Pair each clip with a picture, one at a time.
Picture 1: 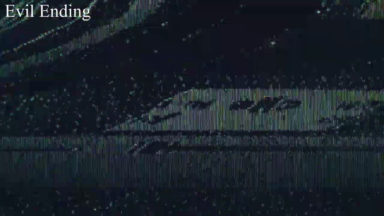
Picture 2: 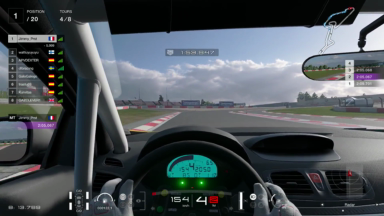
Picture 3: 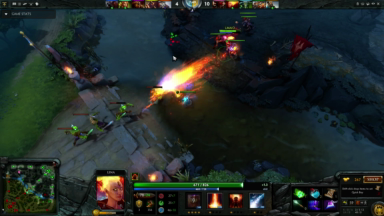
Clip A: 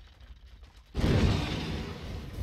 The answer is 3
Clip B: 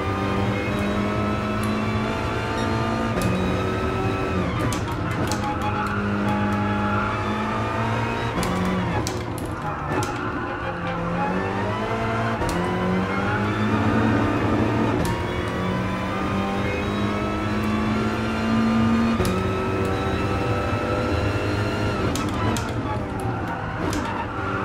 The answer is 2